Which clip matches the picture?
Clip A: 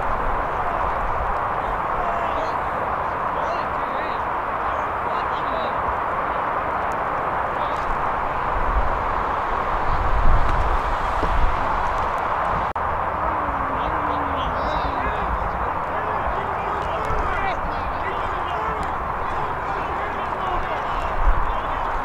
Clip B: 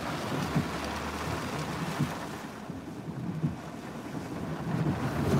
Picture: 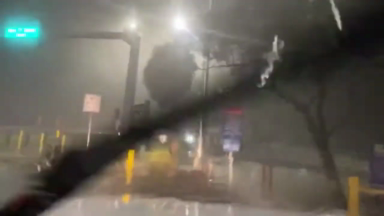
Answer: B